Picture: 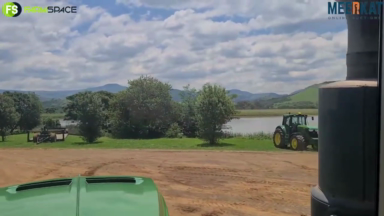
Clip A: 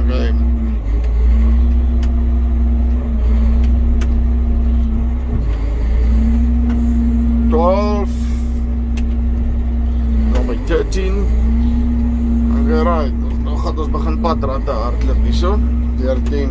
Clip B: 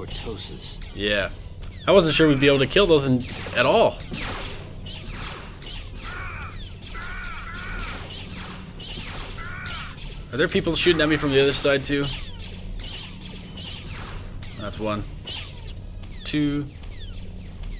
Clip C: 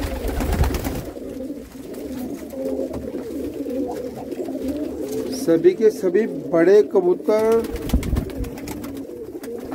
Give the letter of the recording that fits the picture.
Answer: A